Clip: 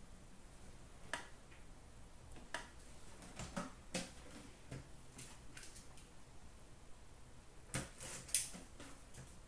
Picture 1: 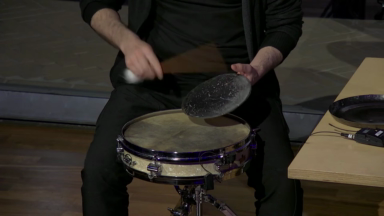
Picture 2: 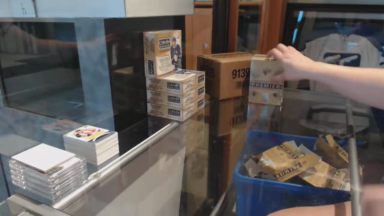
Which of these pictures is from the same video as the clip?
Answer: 2